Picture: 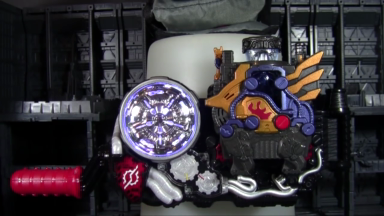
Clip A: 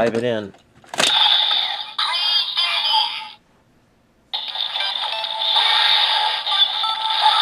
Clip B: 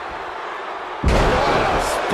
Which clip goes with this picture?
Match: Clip A